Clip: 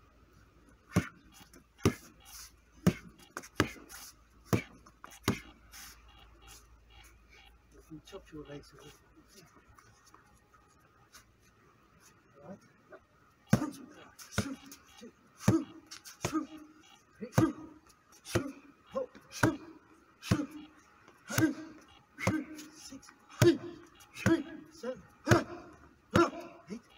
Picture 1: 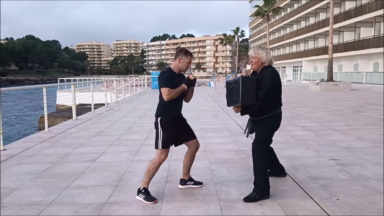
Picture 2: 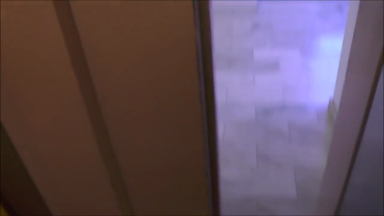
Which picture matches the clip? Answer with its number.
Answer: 1